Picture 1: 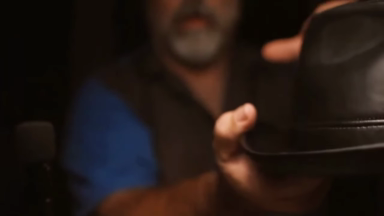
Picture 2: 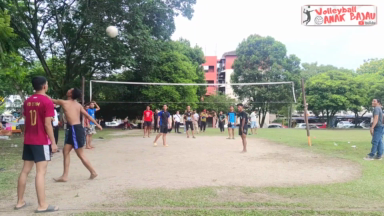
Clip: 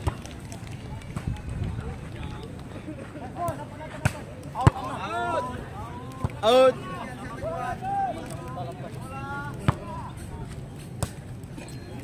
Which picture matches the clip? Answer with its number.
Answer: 2